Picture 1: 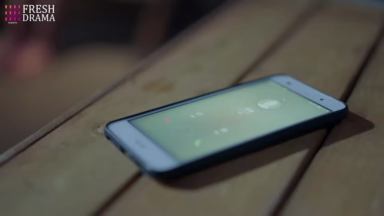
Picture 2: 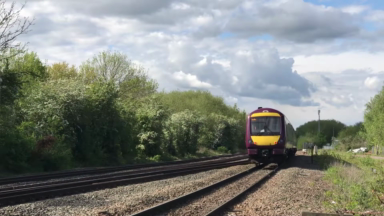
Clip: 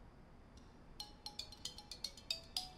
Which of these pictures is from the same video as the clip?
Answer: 1